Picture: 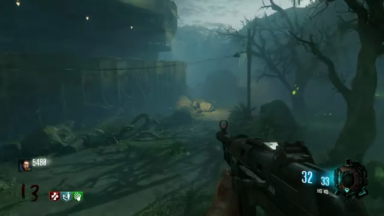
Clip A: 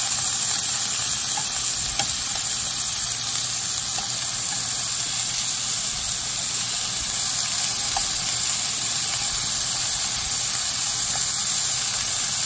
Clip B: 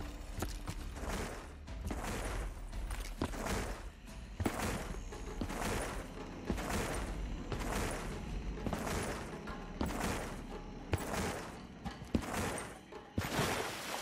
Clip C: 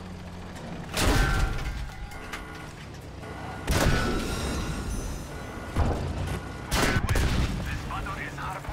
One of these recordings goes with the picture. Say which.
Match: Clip B